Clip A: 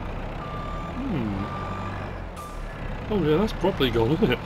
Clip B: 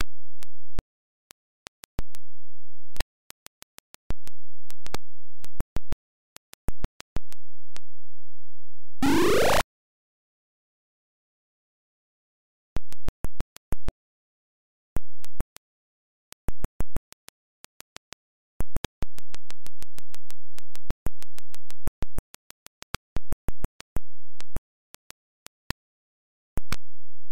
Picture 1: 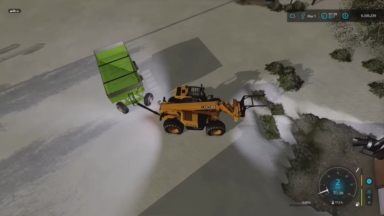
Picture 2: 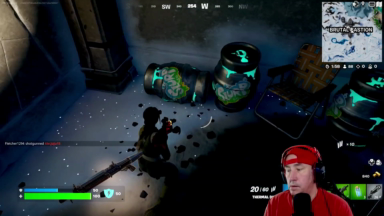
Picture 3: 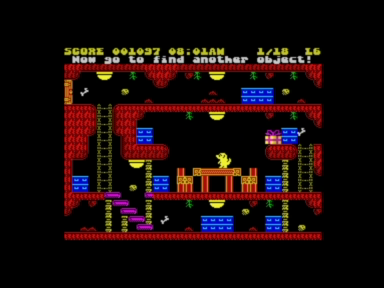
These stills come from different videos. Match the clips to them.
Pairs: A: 1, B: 3